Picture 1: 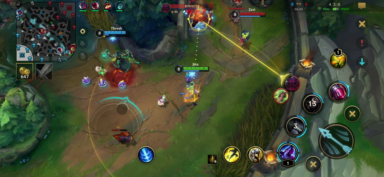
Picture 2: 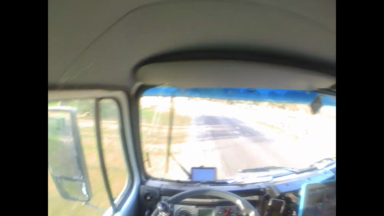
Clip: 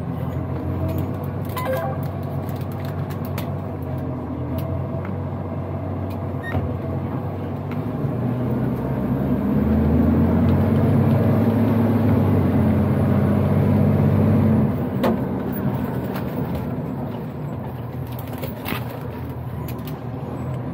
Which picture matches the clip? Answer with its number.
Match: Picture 2